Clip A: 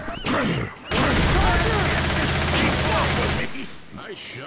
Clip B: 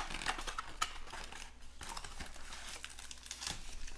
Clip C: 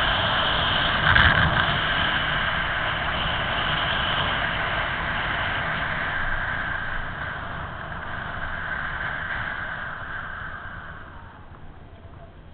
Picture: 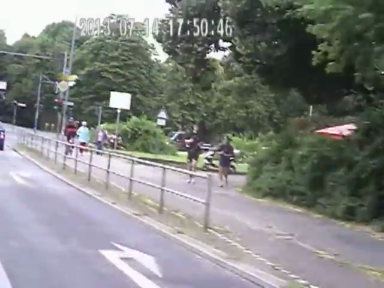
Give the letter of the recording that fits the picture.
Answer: C